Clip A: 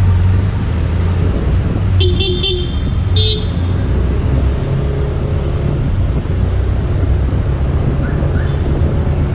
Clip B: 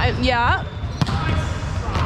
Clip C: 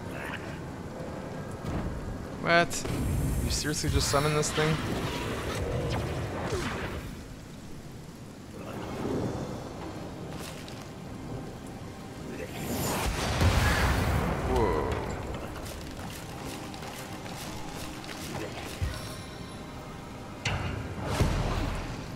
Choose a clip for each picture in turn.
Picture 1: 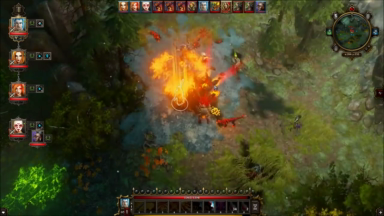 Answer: C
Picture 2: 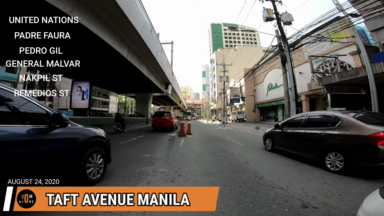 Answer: A